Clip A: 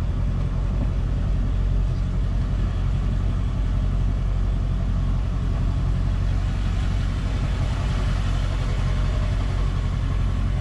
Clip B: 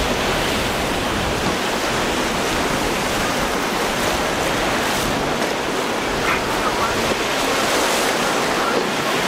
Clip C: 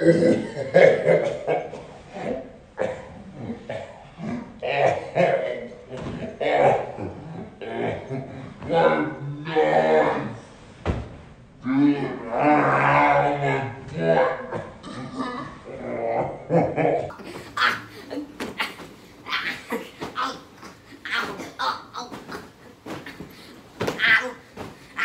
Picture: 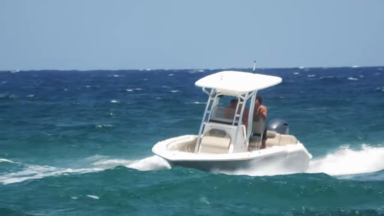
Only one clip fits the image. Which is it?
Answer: B